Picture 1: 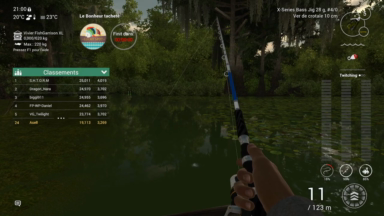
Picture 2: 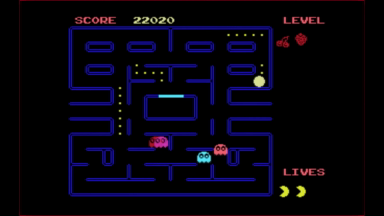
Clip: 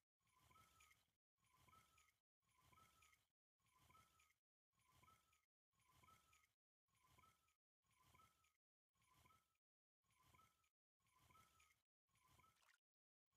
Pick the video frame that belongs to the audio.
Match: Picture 1